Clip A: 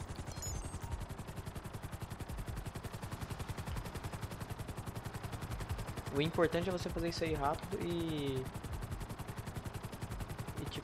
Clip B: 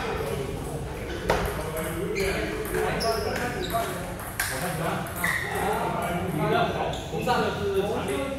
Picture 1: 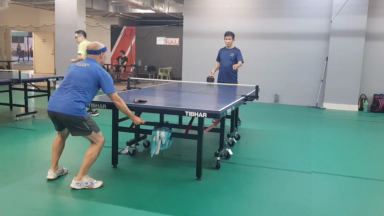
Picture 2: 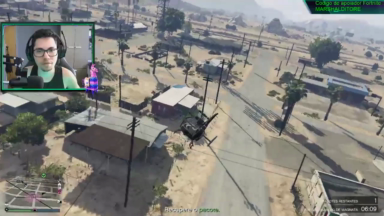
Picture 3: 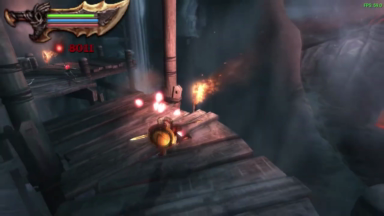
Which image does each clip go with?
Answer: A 2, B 1